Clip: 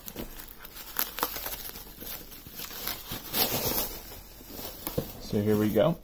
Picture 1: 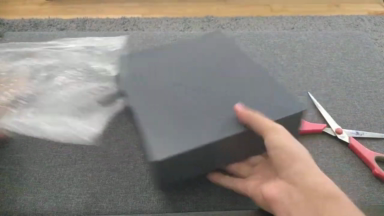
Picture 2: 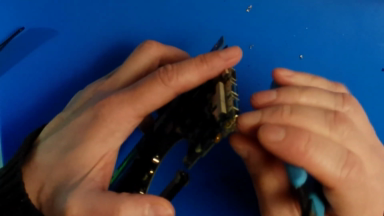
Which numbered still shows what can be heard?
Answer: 1